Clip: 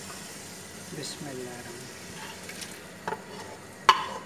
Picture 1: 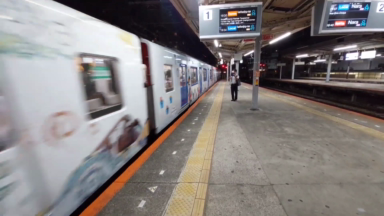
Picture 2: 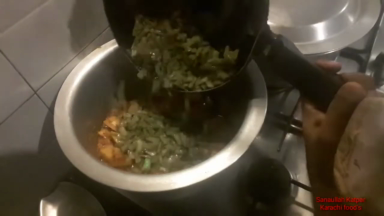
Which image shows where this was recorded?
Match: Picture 2